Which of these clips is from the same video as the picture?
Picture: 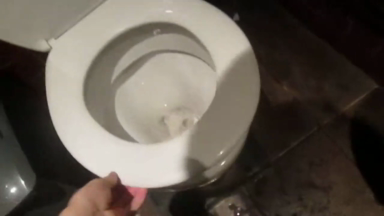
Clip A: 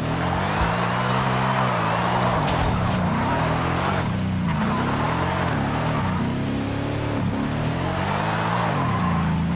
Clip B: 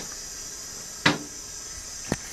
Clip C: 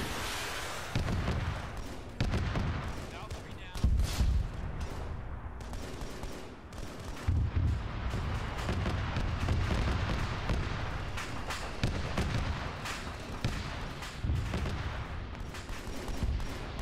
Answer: B